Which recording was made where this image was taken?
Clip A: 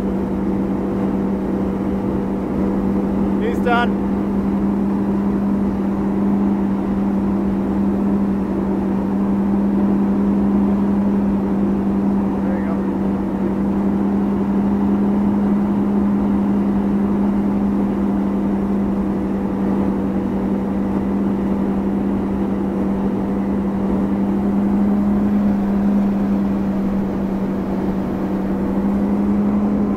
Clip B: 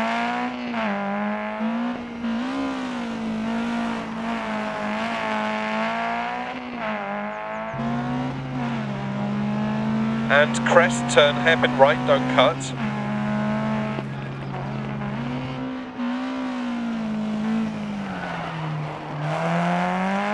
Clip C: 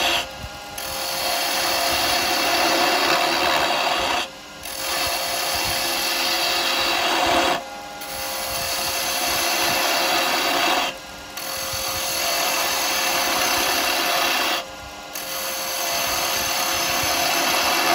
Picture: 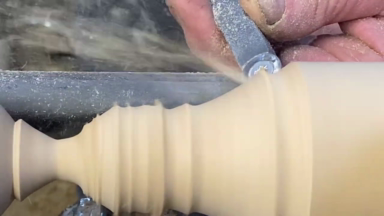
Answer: C